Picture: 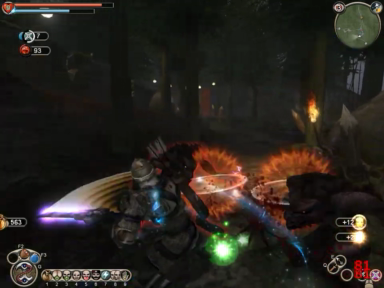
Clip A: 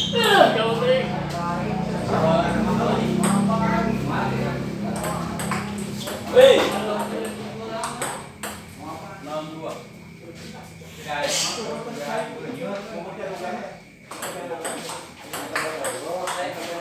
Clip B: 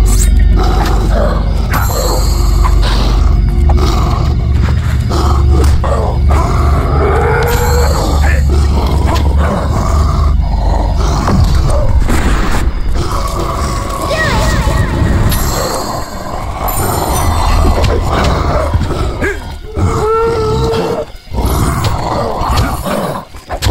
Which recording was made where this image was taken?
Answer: B